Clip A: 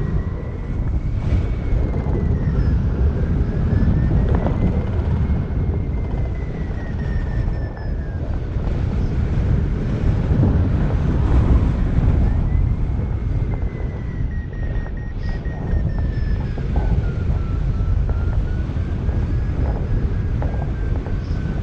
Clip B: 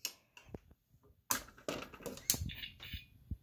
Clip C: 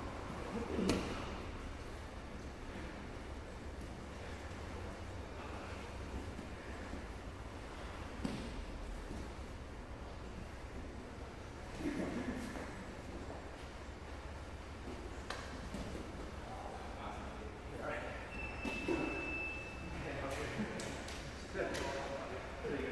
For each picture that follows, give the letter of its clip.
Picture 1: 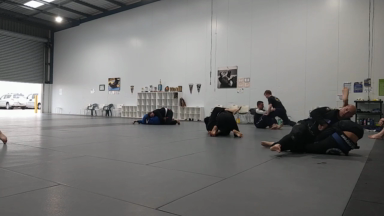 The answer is C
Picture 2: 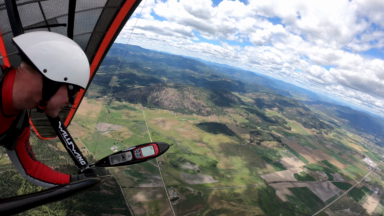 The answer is A